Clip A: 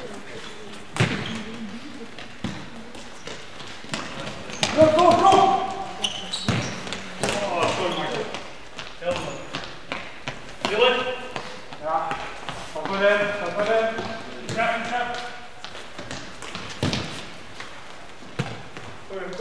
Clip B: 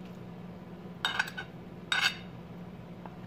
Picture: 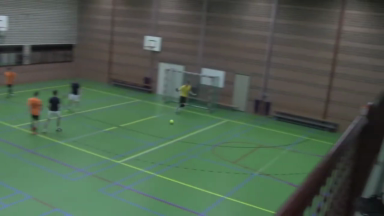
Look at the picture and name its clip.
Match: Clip A